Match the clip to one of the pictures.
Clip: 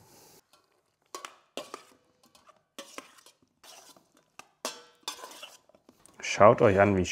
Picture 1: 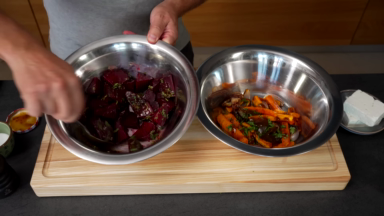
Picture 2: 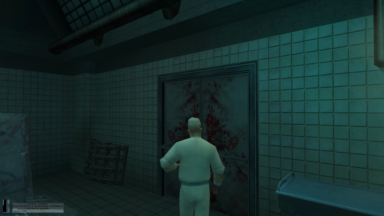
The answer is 1